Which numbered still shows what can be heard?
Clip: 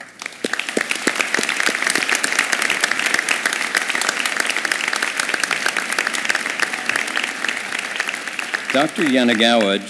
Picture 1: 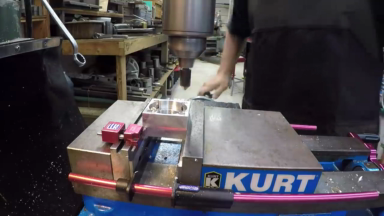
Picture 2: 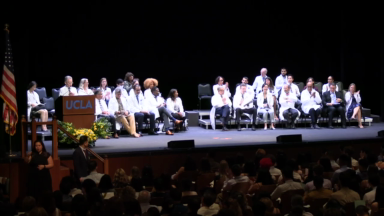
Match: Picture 2